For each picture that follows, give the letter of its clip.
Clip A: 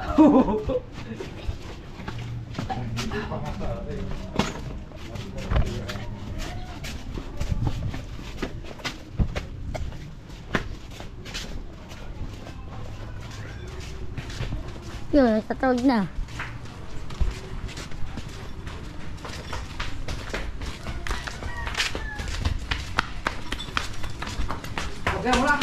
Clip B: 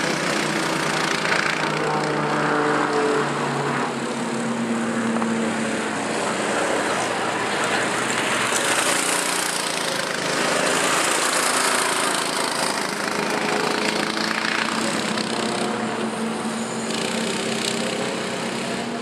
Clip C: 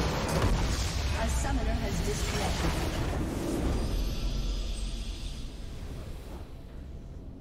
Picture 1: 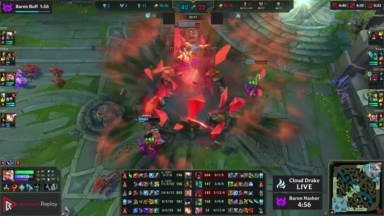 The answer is C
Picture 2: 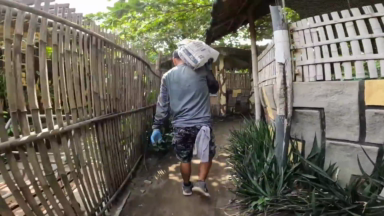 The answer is A